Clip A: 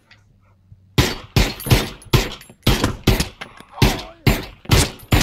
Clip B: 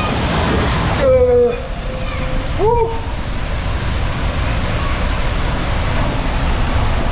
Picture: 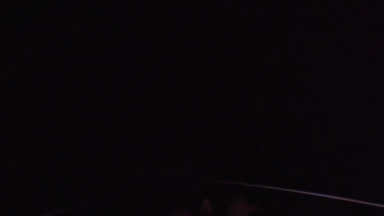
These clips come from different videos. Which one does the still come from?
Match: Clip B